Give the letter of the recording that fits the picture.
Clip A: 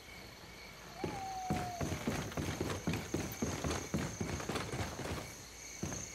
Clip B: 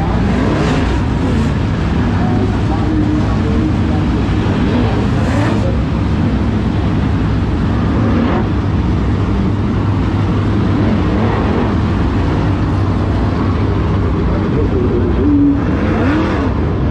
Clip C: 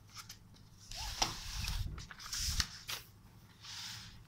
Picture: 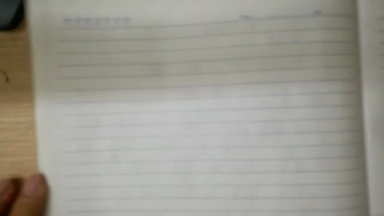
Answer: C